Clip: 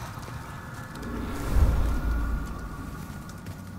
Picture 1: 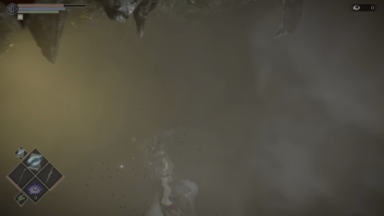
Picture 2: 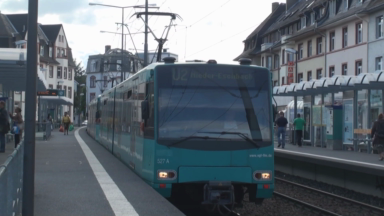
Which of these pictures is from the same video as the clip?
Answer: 1